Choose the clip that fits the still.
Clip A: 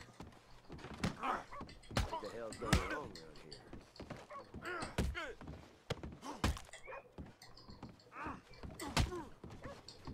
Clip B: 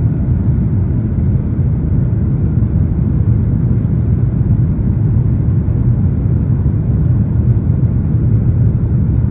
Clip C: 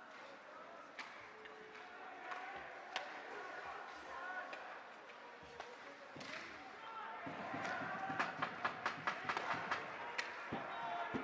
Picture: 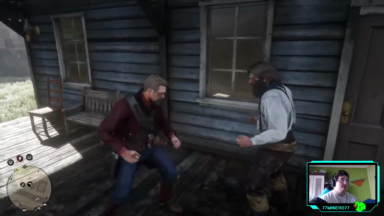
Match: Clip A